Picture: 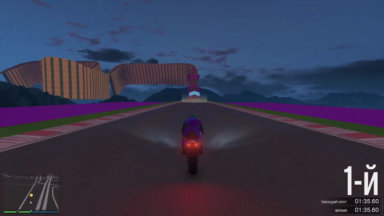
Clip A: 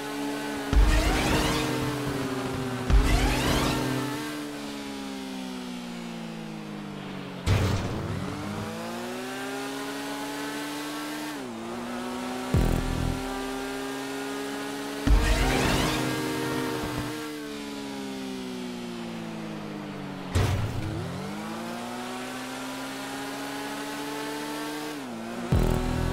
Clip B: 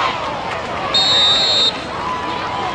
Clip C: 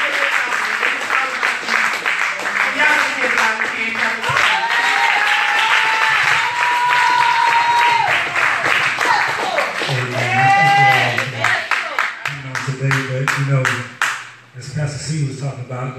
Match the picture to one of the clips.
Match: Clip A